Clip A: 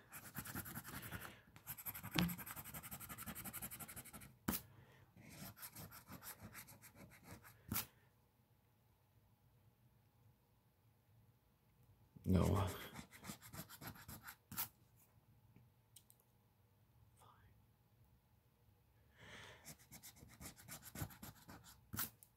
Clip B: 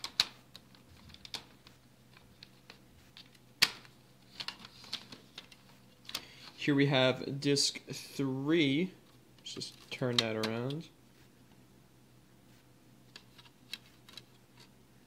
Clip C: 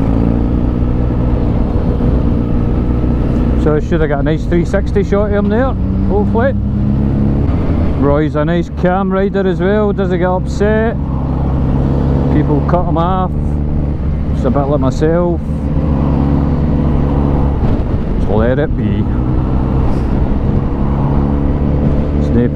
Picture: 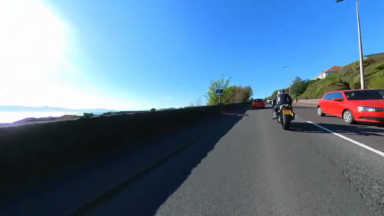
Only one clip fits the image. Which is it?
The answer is C